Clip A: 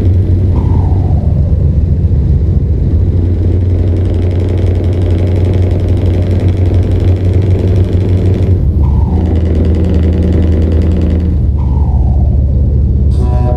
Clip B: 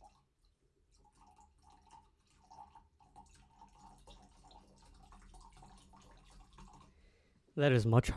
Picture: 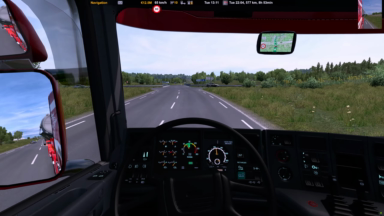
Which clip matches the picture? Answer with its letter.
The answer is A